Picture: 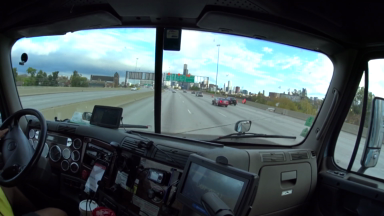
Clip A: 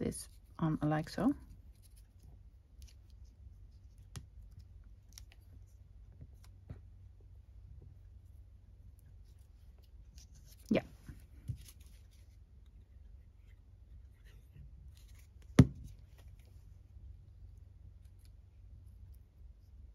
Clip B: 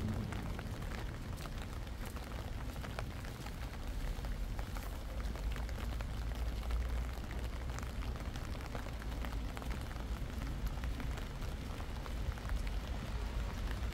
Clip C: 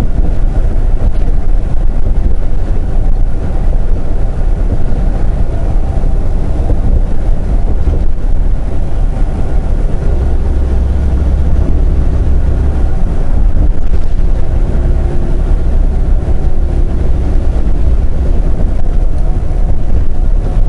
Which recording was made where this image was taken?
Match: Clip C